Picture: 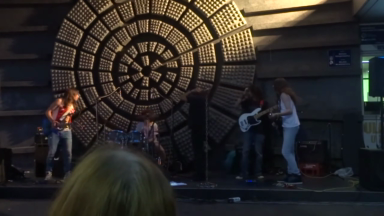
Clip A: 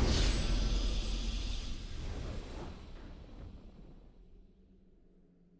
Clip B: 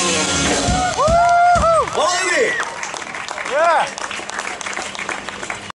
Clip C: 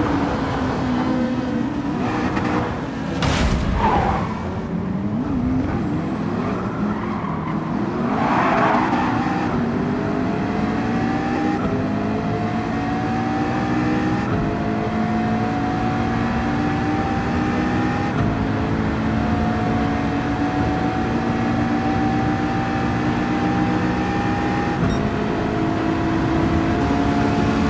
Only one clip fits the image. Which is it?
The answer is B